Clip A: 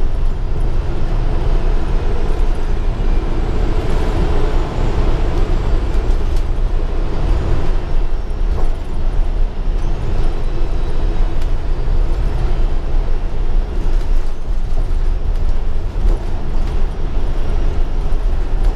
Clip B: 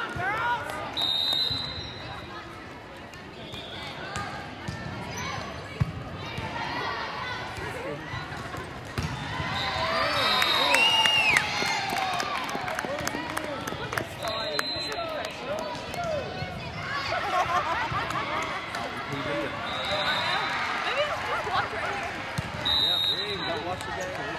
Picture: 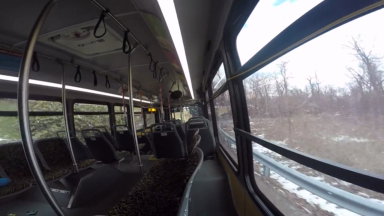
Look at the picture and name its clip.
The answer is A